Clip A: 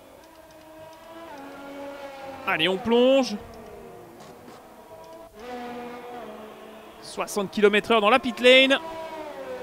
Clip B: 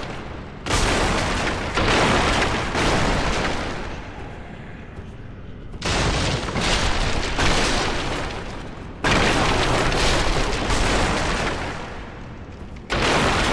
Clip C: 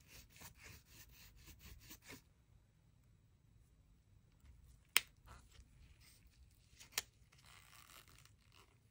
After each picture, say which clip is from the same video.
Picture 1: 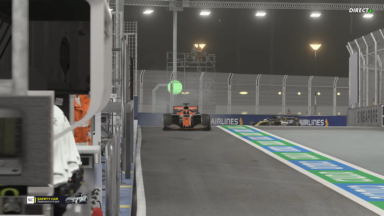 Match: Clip A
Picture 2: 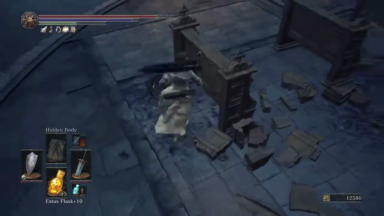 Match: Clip B